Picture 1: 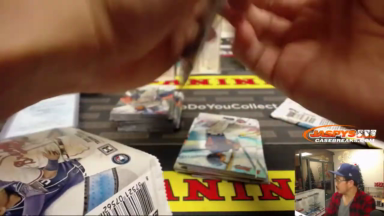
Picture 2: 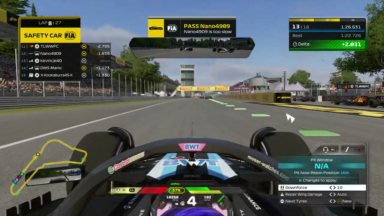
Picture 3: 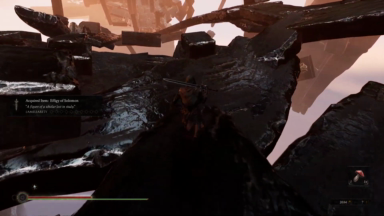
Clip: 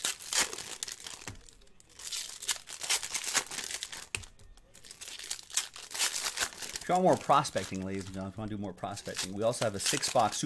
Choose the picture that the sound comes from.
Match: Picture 1